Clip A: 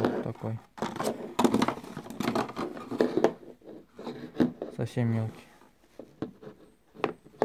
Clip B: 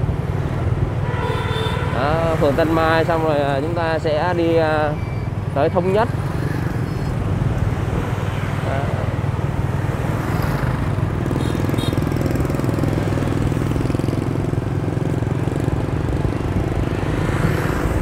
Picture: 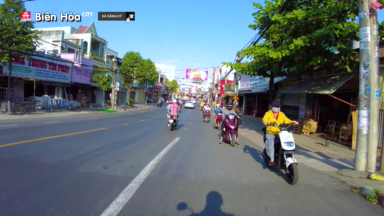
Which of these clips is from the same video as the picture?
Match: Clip B